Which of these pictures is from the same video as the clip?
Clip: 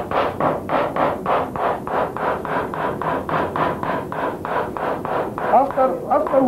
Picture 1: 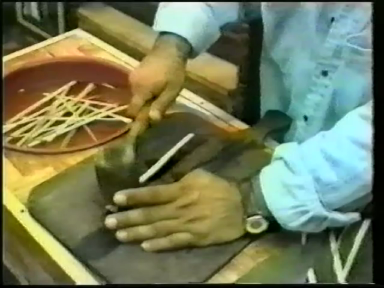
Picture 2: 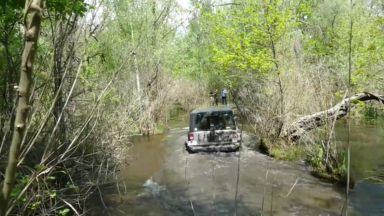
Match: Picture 1